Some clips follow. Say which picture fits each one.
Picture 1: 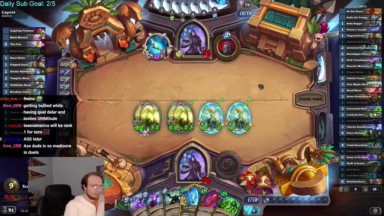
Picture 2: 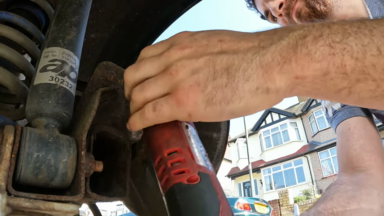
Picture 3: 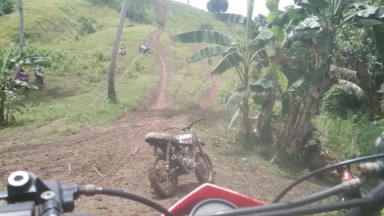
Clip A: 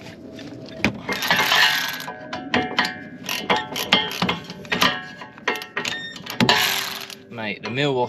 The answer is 2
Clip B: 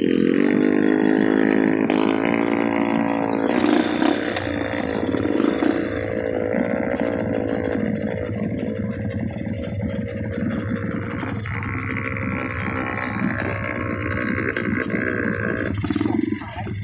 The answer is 3